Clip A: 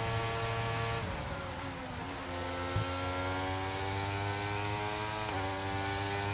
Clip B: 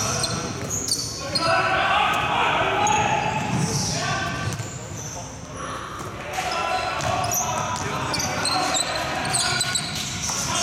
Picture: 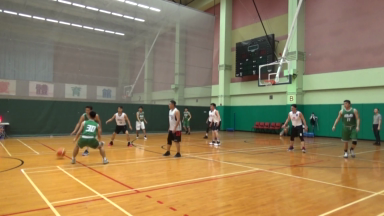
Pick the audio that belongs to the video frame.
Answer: B